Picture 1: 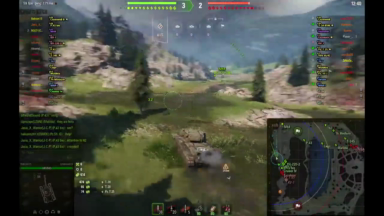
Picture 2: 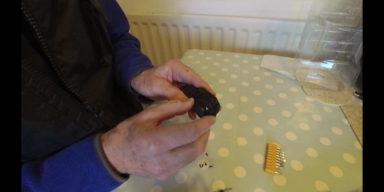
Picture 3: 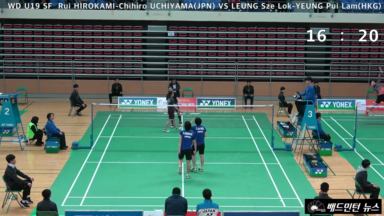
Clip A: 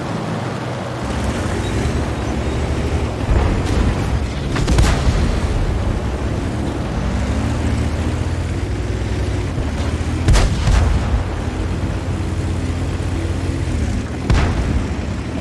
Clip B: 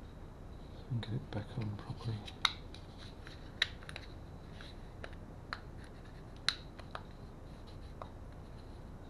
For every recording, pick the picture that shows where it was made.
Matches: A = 1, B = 2